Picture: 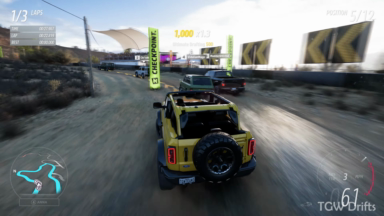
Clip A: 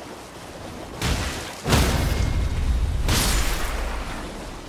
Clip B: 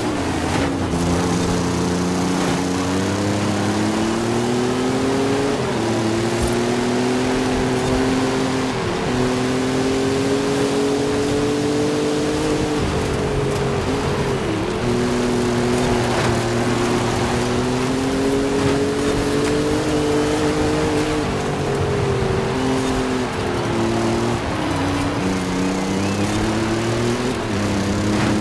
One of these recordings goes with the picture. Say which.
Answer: B